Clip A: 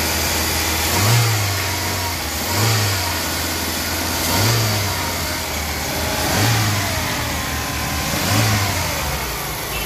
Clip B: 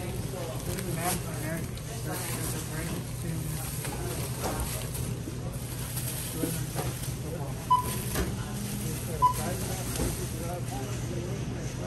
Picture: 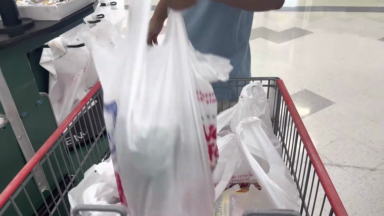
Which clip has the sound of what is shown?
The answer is B